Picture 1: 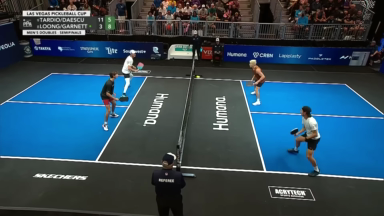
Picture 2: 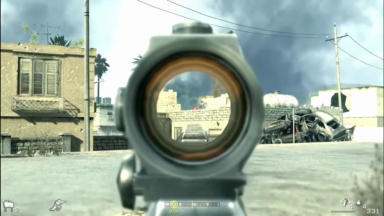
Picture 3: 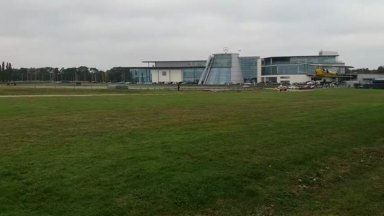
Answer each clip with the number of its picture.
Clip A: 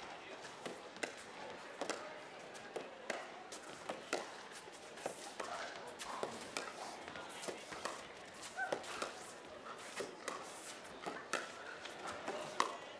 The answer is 1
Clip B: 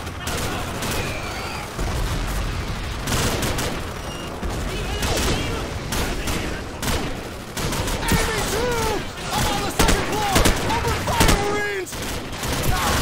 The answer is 2